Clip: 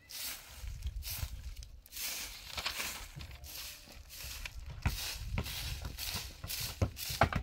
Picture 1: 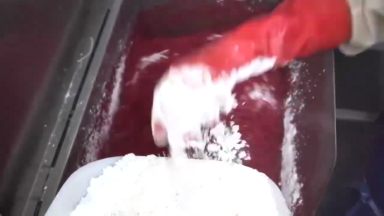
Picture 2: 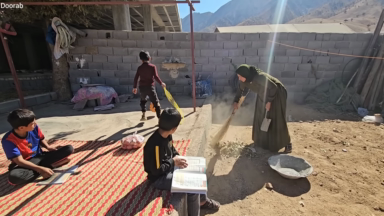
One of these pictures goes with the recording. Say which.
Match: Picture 2